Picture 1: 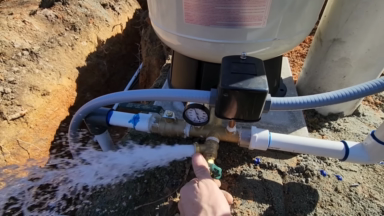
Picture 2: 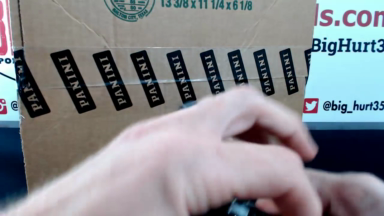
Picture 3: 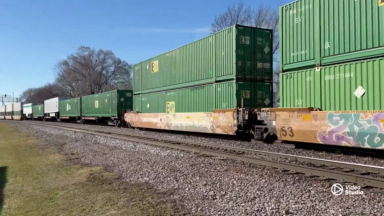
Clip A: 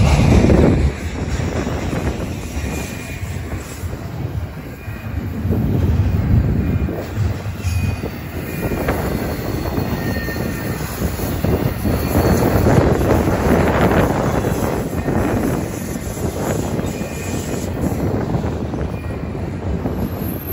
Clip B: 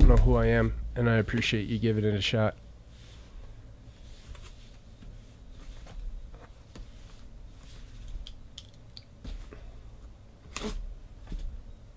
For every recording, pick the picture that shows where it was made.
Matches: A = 3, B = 2